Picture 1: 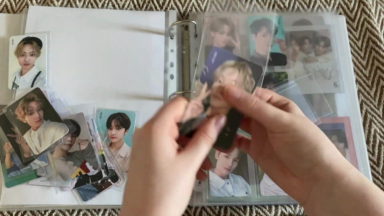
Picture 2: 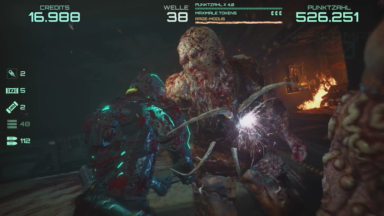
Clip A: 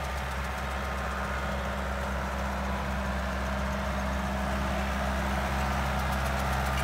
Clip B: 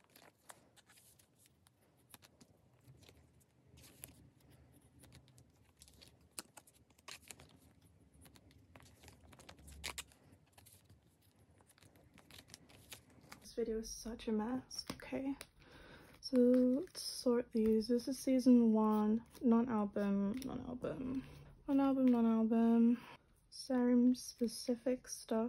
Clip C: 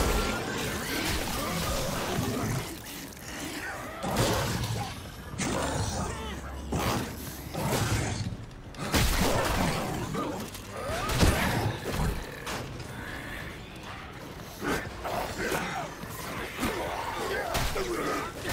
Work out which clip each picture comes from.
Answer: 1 B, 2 C